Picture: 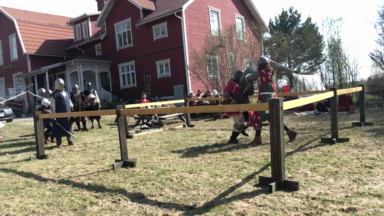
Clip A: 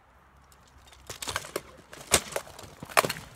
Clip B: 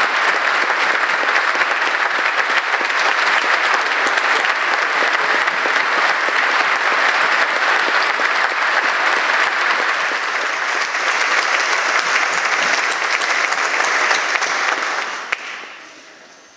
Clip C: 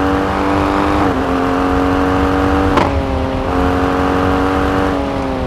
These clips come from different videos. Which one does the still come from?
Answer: A